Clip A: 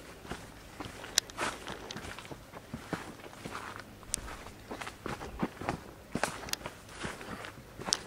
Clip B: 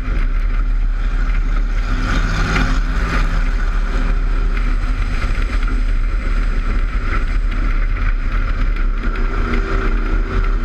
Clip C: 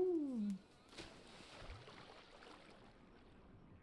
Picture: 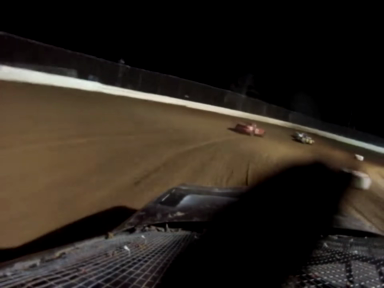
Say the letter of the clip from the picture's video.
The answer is B